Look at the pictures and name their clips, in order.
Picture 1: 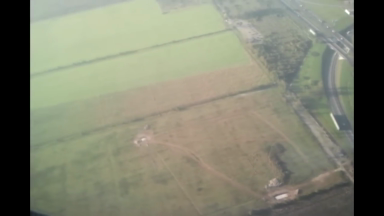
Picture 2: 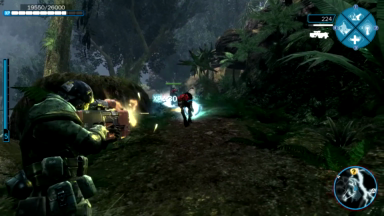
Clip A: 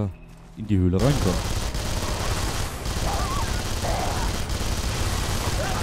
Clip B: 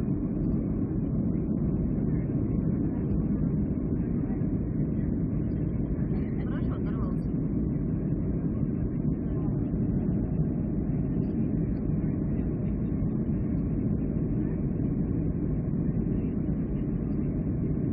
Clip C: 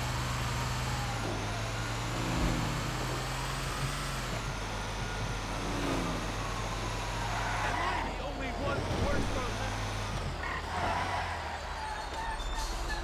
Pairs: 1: B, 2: A